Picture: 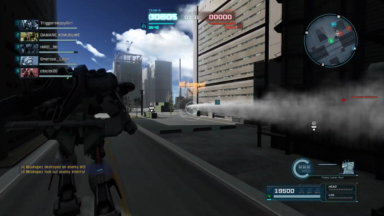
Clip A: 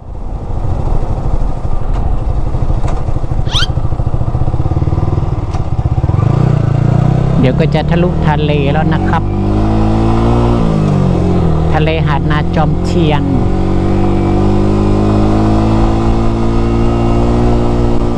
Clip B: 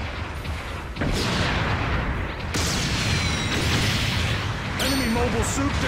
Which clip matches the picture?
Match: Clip B